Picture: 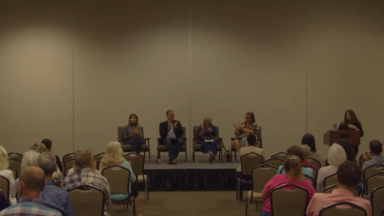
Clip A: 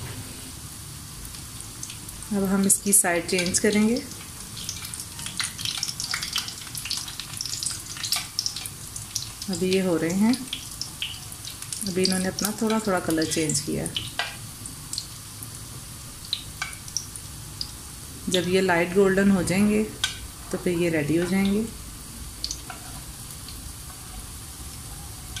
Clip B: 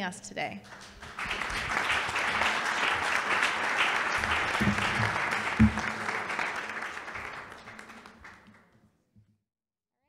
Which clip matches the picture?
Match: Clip B